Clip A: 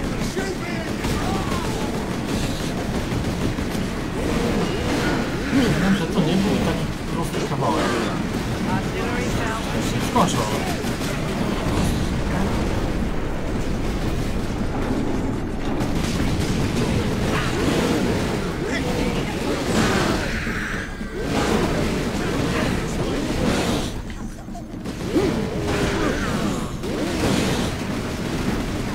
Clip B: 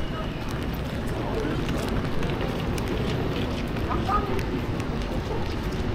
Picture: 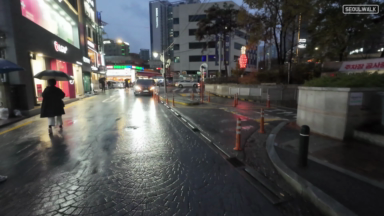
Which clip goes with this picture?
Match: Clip B